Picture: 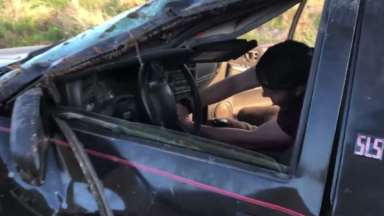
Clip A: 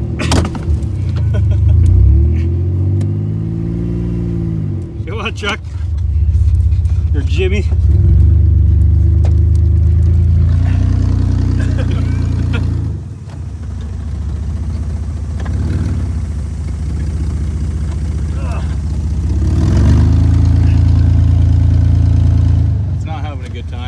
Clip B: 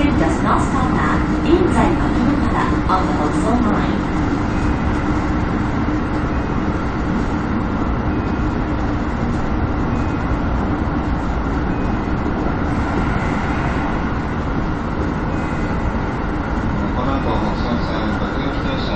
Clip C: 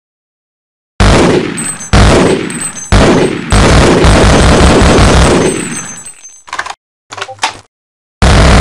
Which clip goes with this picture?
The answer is A